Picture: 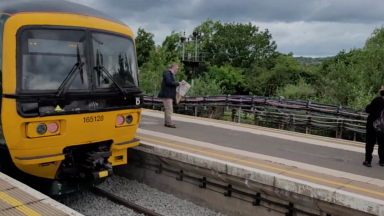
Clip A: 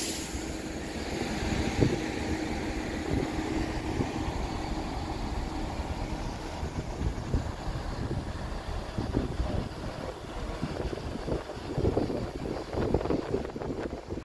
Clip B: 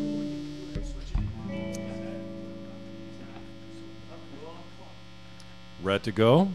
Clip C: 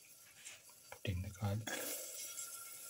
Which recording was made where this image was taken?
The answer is A